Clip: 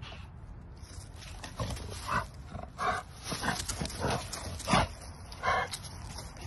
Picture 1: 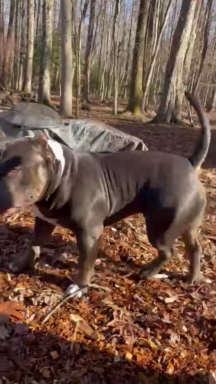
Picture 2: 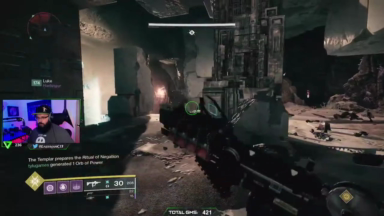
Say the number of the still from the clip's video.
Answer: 1